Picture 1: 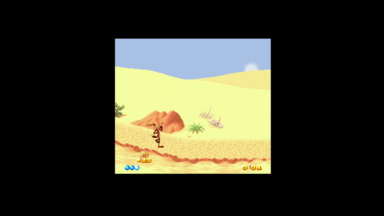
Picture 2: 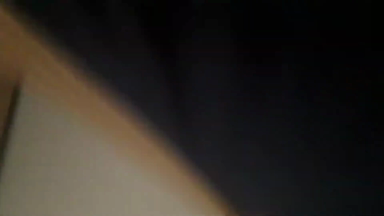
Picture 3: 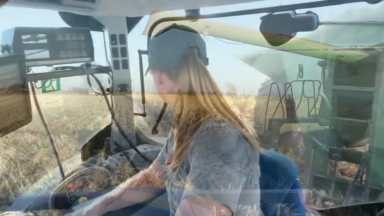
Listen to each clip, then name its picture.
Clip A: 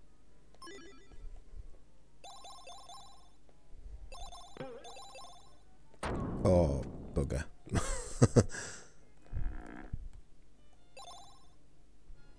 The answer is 1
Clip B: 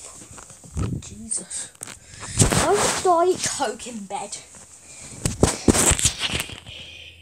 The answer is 2